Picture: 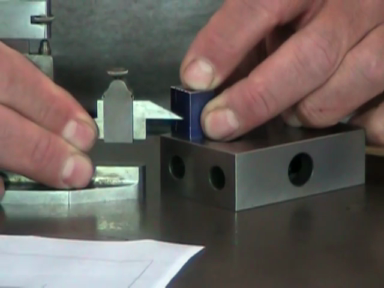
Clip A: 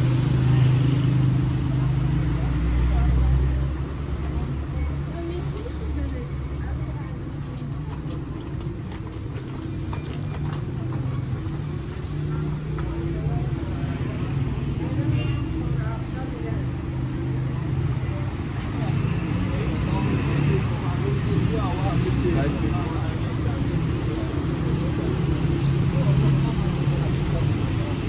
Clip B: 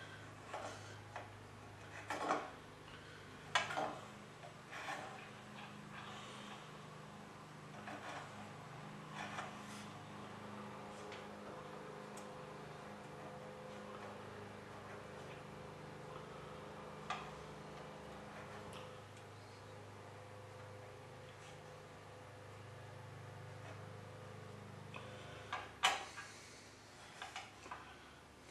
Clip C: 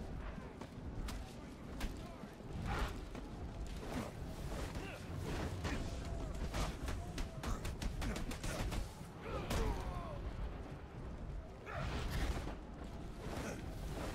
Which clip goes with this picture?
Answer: B